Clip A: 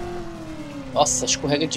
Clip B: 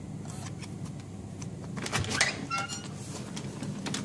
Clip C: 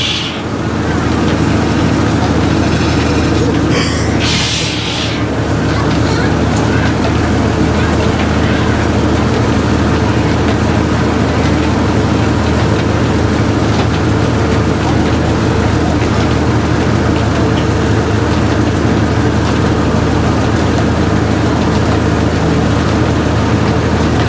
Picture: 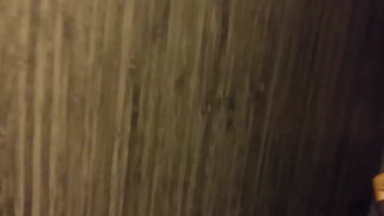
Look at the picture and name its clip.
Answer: B